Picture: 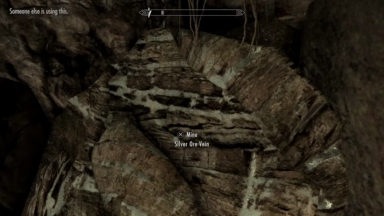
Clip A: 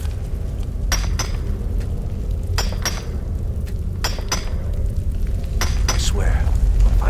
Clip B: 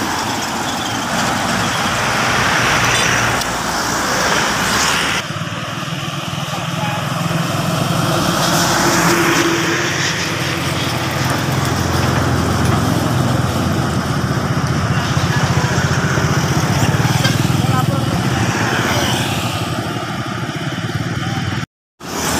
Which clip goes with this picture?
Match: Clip A